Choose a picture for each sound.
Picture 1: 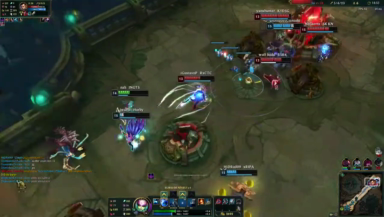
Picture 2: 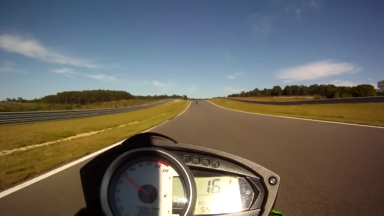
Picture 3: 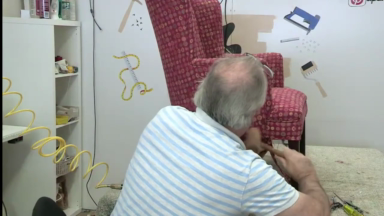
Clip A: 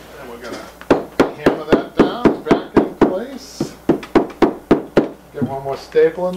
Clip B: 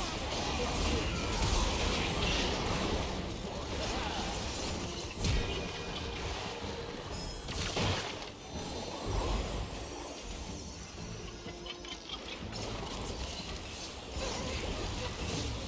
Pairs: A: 3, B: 1